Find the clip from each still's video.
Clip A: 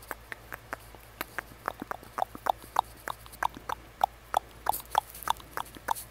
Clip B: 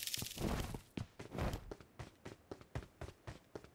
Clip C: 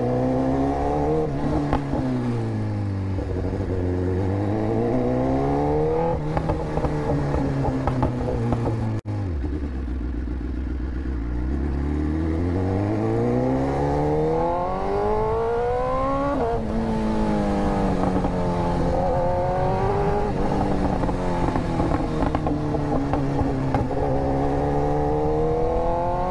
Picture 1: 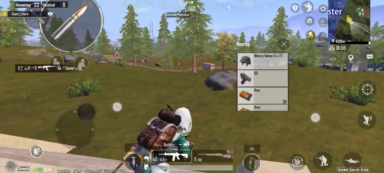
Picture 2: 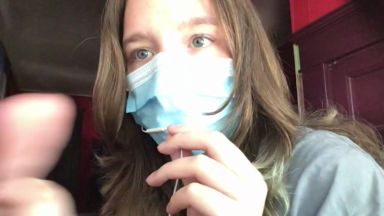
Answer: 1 B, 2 A